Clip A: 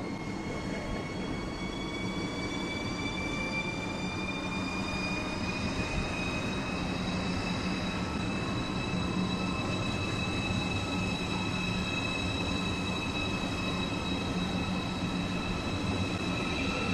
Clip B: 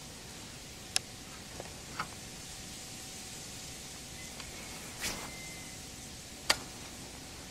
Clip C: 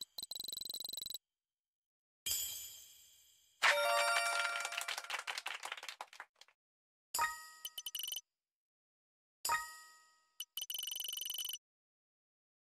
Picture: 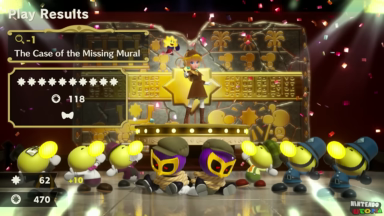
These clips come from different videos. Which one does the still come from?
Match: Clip C